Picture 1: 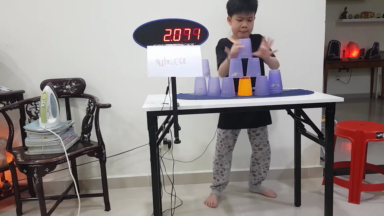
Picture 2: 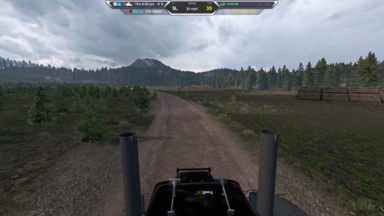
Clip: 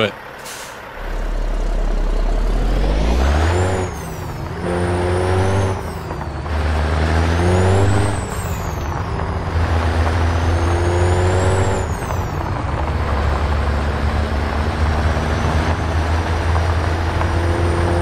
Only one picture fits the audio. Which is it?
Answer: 2